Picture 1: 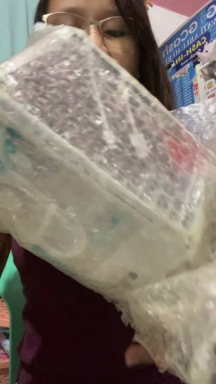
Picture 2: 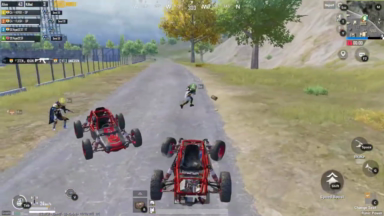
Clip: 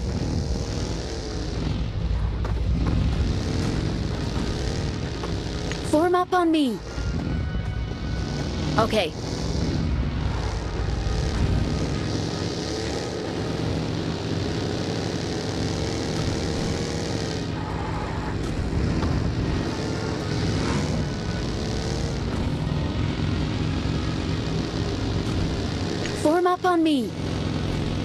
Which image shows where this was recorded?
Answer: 2